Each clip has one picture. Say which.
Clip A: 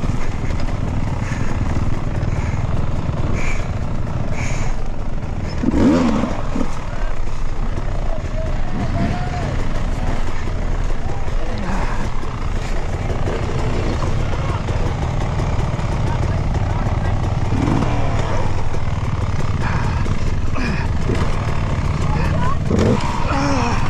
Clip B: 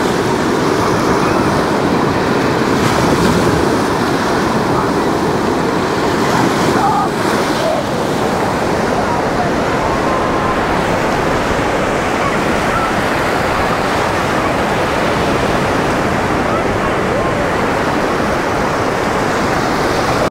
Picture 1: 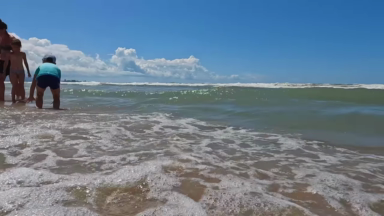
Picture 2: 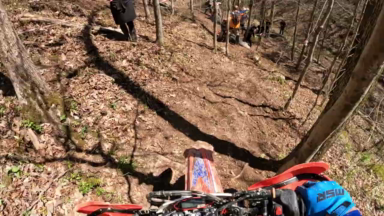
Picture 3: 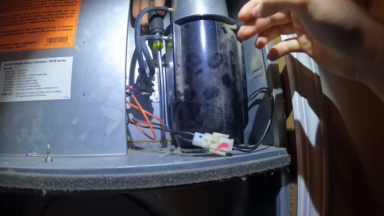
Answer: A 2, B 1